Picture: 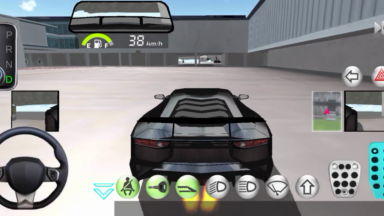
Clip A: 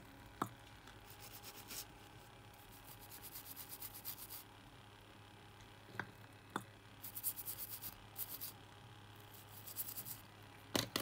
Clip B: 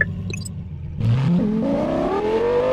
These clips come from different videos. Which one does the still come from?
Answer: B